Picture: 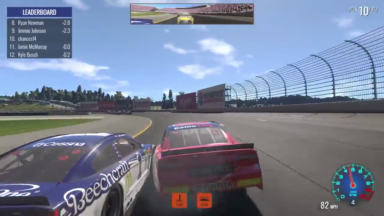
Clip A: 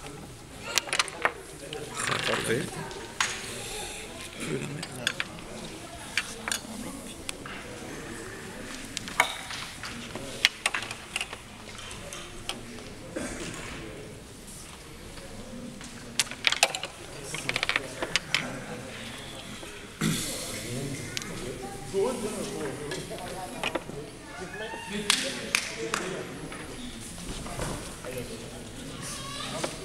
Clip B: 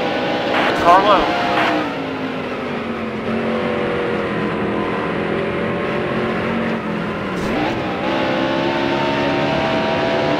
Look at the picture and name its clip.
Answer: B